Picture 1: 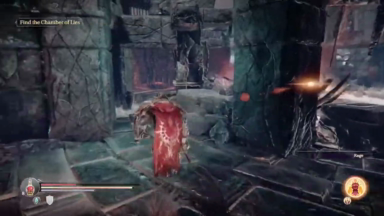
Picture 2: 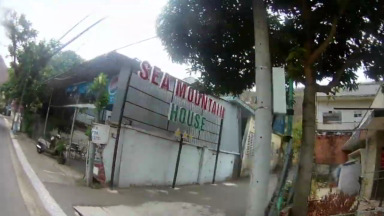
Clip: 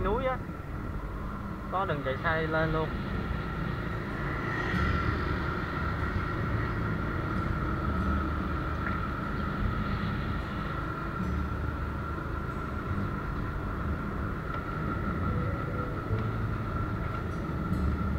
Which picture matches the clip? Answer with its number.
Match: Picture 2